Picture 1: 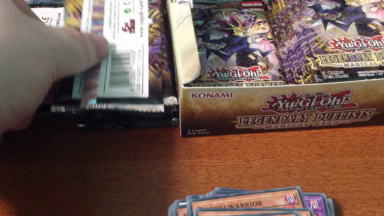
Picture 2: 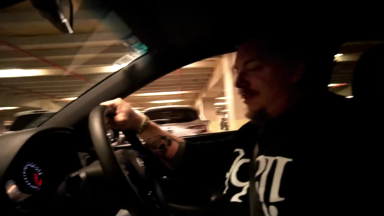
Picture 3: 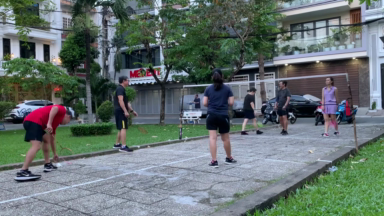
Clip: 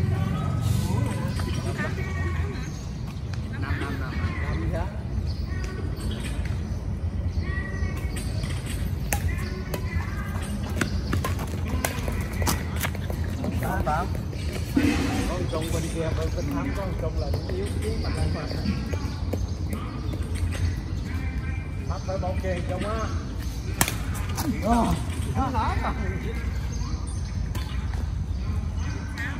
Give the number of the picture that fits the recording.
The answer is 3